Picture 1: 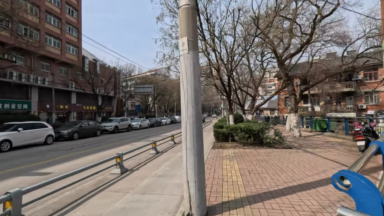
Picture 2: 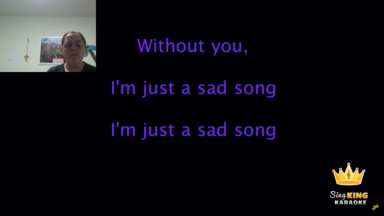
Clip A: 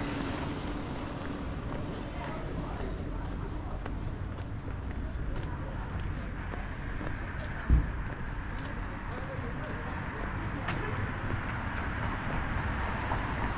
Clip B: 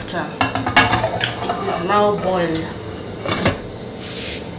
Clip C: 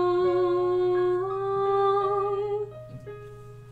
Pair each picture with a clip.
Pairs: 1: A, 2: C